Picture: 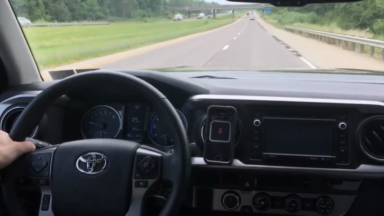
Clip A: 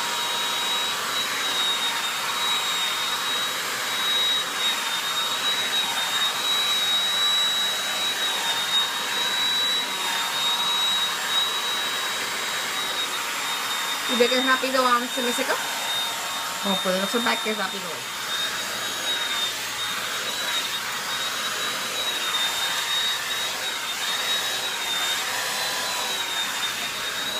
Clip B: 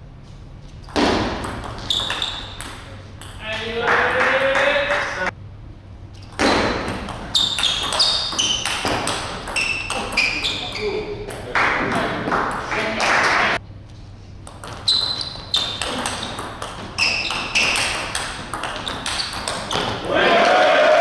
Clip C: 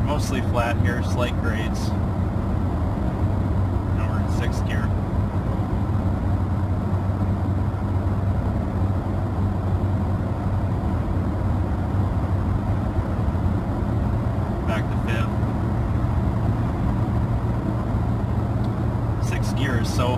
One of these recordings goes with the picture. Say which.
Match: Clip C